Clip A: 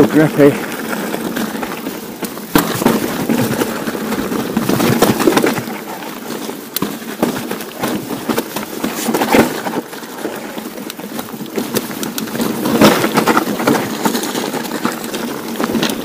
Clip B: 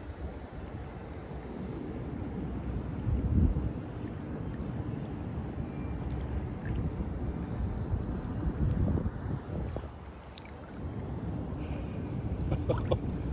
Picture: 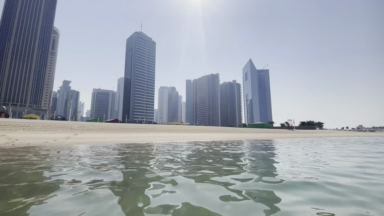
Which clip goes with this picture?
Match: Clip B